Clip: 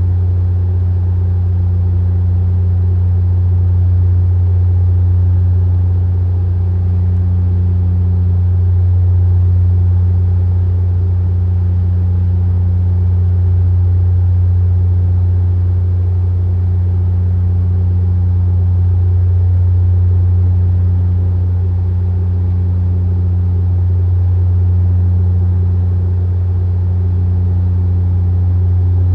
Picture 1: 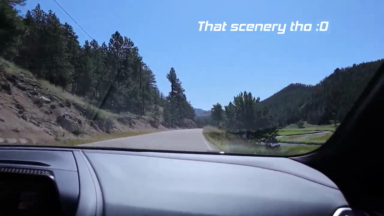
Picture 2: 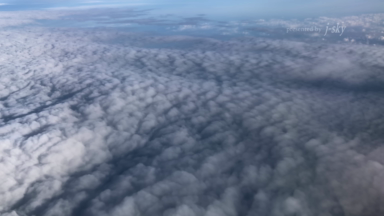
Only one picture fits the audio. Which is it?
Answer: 2